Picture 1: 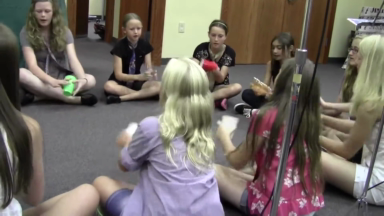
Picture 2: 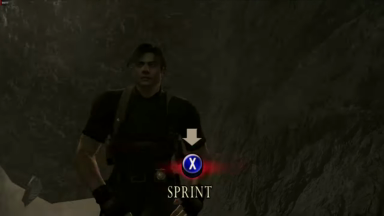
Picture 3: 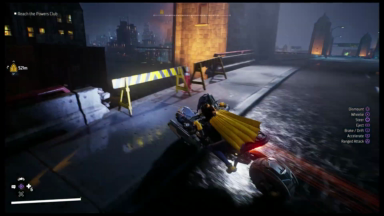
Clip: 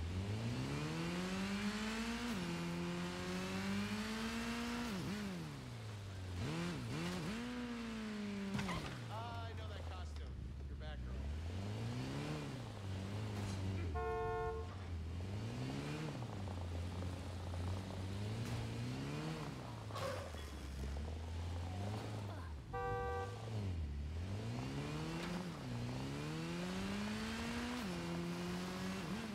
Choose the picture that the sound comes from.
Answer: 3